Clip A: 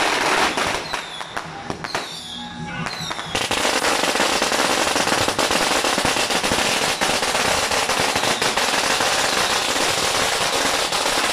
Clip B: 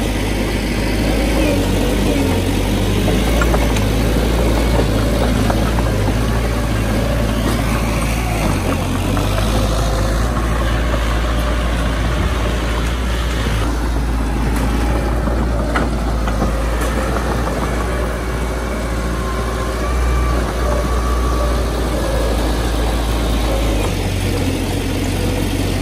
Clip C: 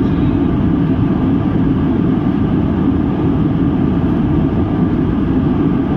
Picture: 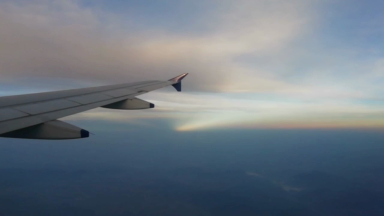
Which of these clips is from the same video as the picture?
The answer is C